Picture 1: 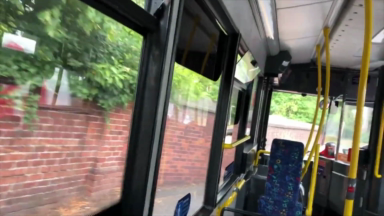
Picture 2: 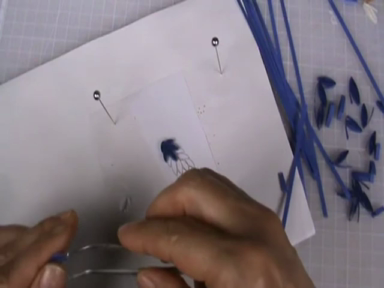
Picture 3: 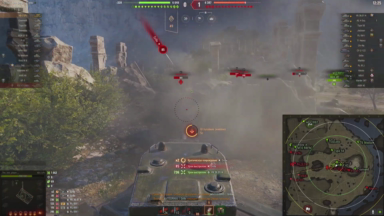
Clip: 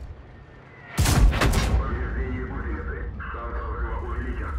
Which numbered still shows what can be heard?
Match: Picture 3